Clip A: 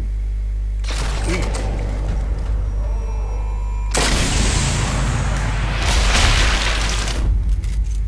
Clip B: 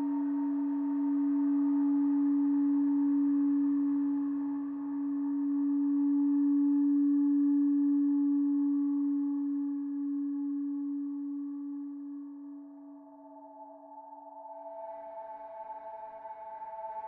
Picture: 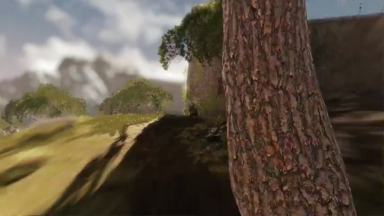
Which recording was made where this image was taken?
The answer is A